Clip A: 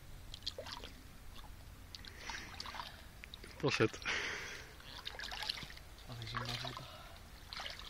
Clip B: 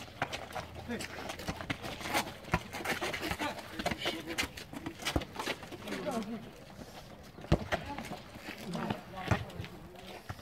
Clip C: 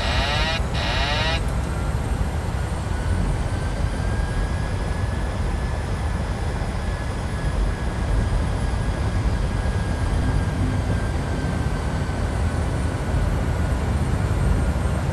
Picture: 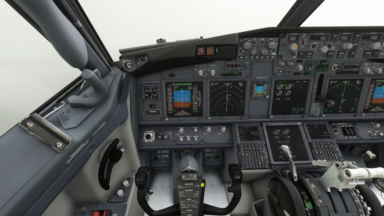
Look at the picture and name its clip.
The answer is C